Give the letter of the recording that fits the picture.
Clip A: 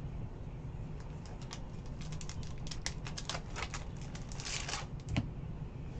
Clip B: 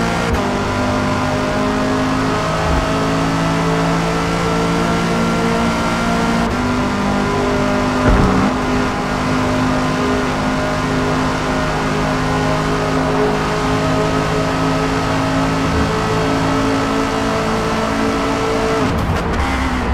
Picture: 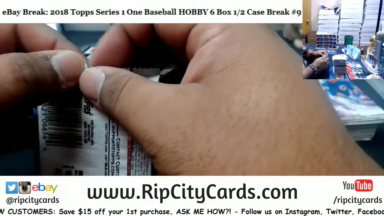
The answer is A